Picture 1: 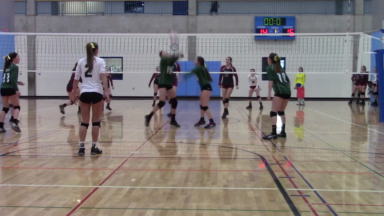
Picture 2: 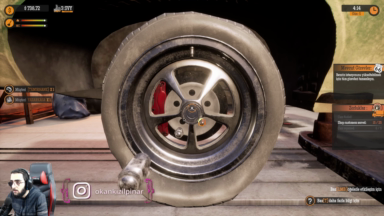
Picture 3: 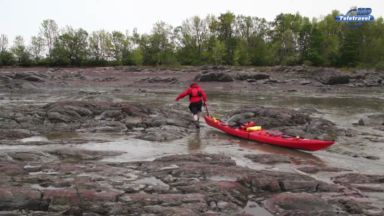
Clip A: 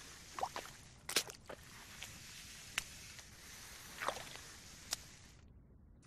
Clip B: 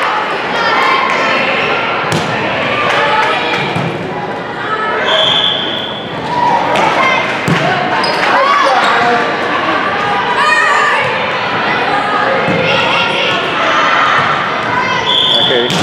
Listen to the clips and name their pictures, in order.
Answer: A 3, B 1